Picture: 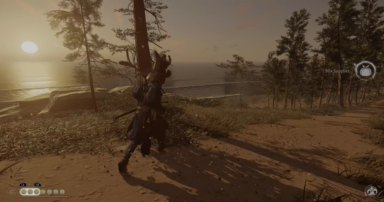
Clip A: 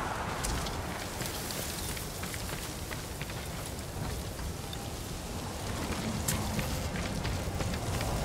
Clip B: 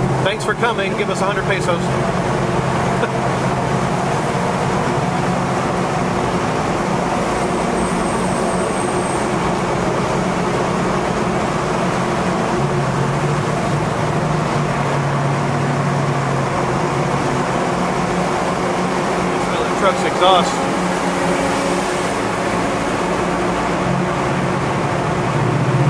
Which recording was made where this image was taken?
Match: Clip A